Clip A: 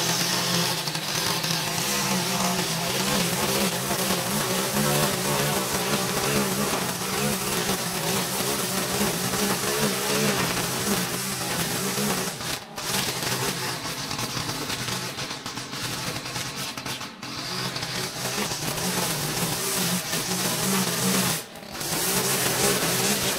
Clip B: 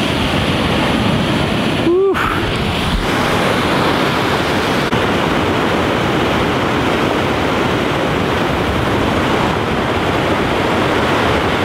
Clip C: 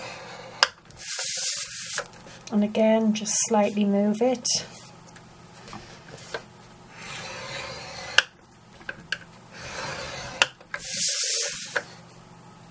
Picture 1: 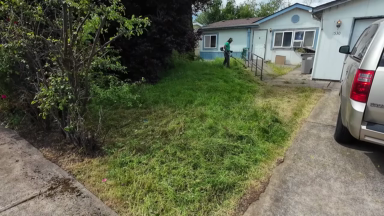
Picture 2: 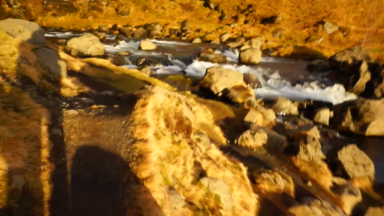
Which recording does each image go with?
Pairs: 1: A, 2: B